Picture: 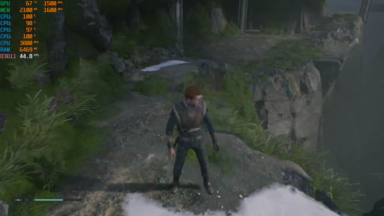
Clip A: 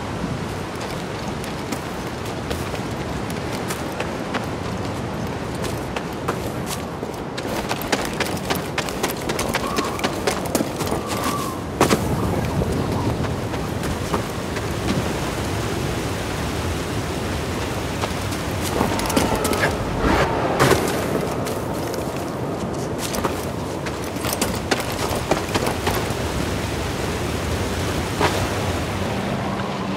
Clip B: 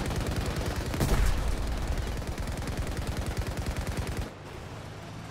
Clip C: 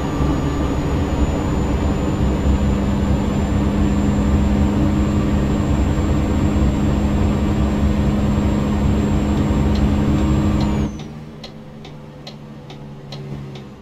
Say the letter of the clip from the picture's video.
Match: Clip A